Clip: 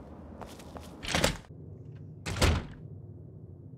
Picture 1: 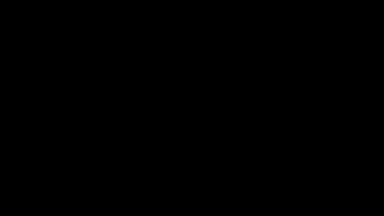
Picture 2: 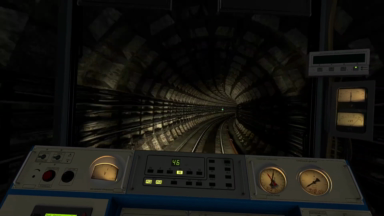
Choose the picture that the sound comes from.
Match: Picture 1